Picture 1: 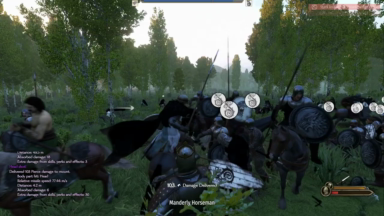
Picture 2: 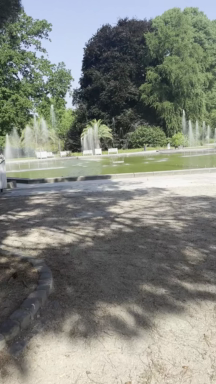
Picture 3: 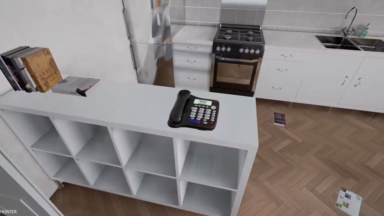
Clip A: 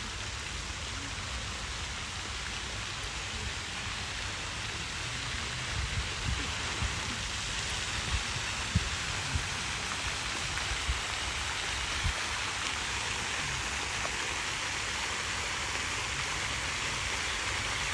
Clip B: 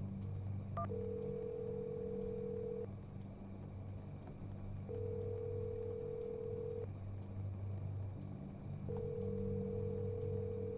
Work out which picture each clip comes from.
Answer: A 2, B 3